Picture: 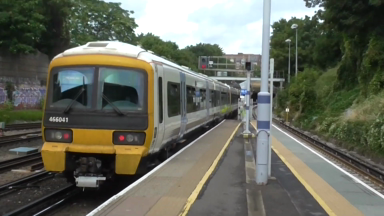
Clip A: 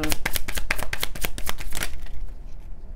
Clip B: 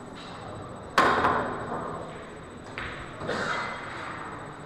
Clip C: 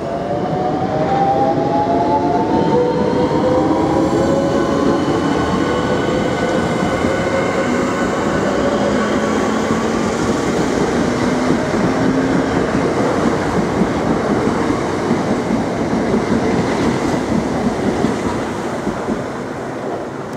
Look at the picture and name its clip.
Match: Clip C